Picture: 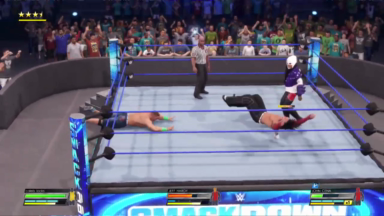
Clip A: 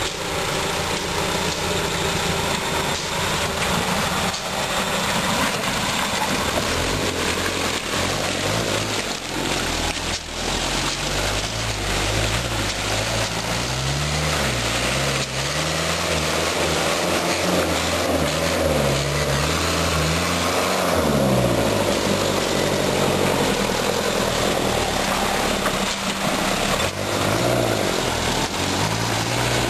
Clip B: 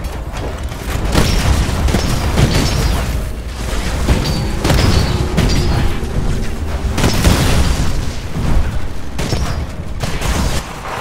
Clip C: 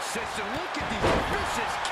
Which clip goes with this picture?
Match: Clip C